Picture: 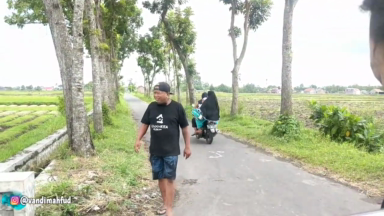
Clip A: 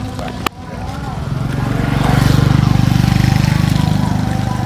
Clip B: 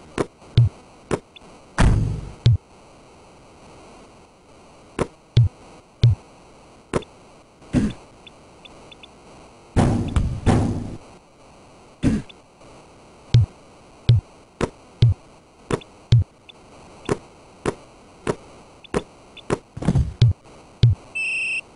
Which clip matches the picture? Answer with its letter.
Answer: A